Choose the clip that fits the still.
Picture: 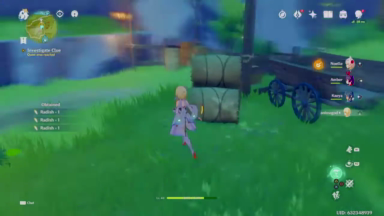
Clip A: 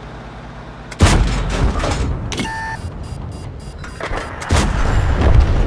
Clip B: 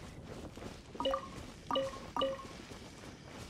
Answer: B